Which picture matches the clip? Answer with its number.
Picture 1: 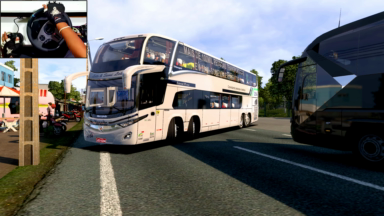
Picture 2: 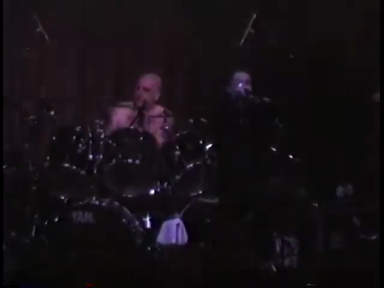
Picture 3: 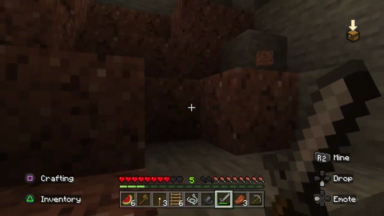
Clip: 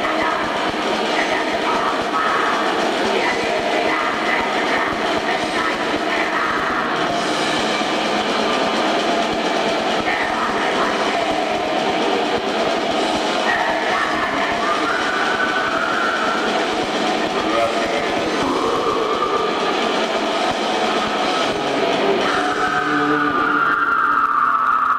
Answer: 2